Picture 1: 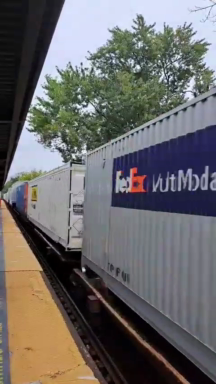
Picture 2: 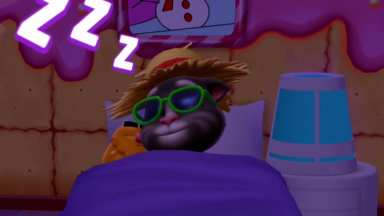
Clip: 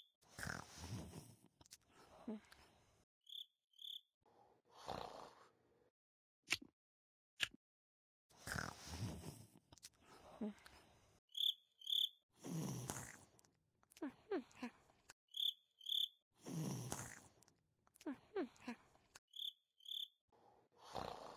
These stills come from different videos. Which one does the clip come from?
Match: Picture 2